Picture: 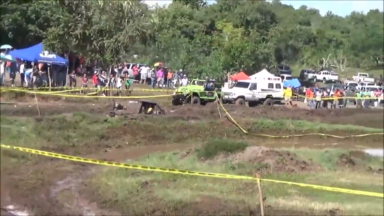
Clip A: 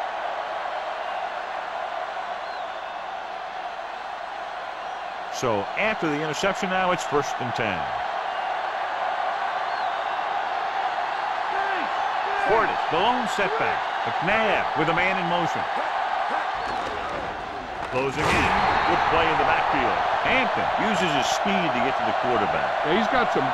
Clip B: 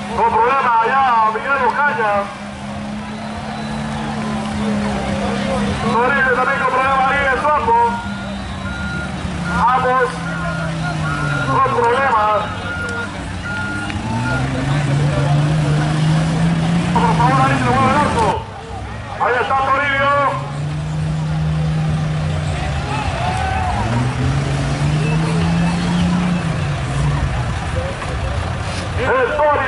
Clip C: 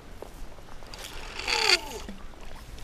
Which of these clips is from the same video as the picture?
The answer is B